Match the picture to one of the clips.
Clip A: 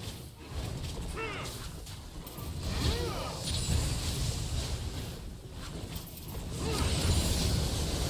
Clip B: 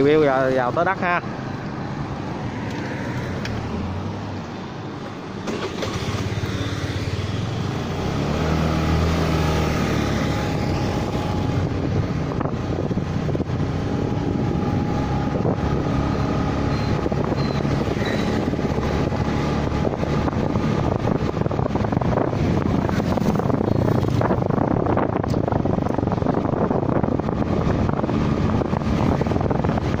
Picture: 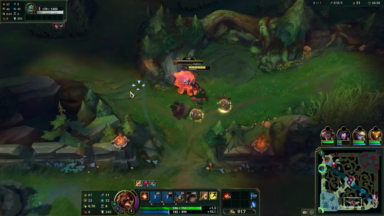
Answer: A